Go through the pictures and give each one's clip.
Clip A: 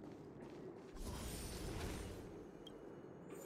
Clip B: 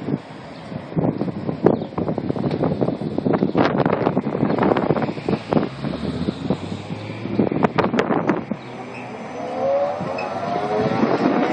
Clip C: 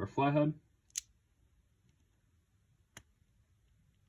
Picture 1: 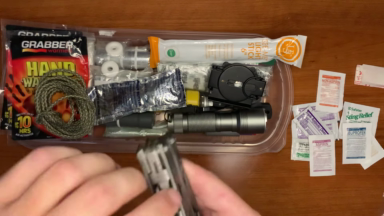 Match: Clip C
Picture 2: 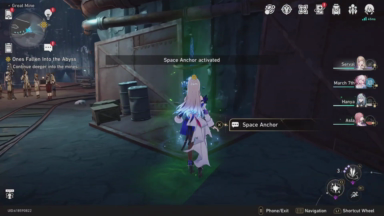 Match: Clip A